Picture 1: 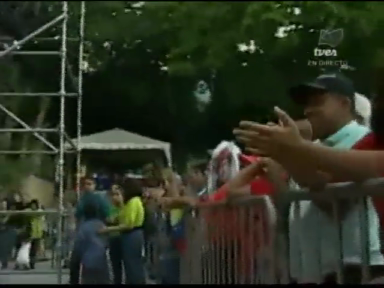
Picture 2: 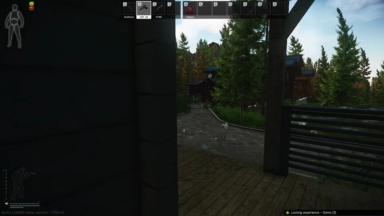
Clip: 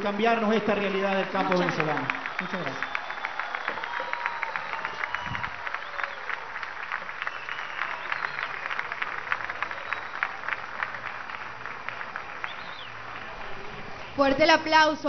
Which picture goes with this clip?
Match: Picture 1